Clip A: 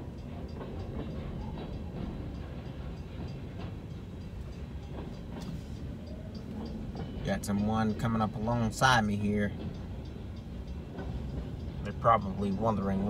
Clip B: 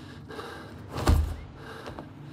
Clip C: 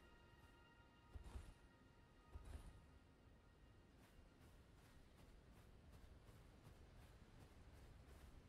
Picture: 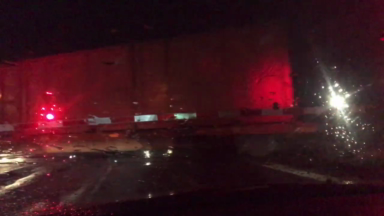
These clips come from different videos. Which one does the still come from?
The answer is A